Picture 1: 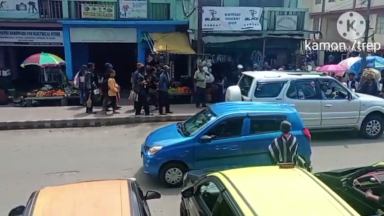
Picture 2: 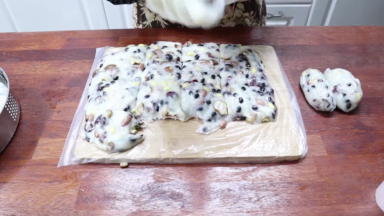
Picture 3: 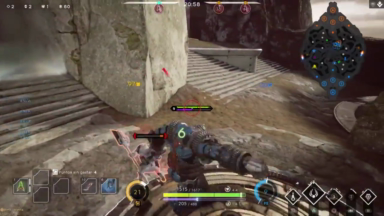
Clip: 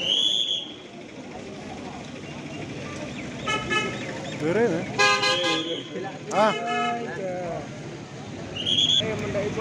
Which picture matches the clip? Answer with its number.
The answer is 1